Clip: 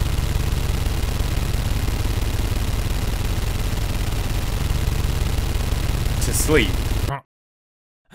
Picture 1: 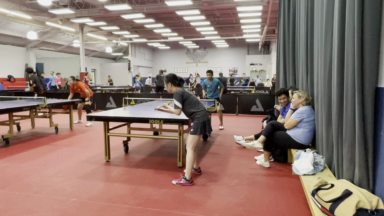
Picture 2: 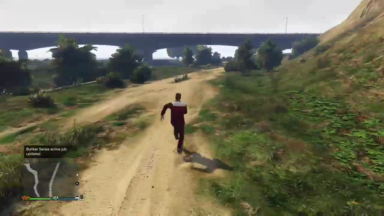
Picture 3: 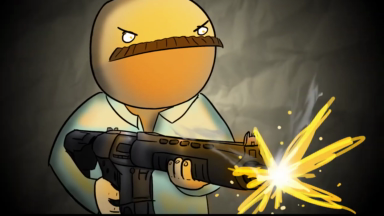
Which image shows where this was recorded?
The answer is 3